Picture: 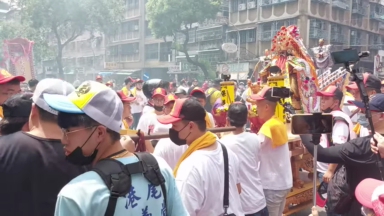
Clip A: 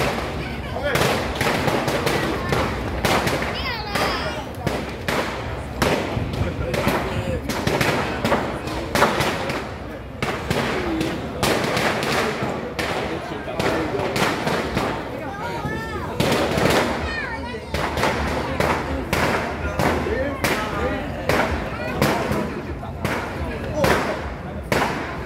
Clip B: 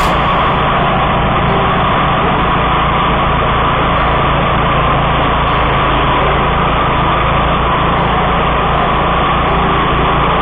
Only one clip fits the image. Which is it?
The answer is A